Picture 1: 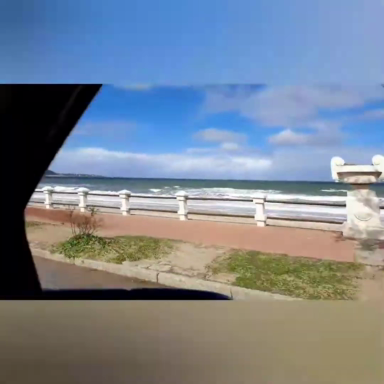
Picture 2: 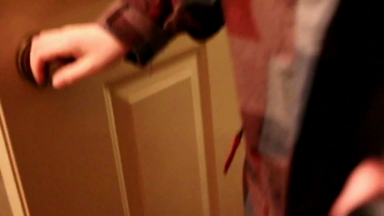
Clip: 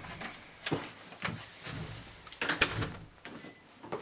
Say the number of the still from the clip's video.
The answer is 2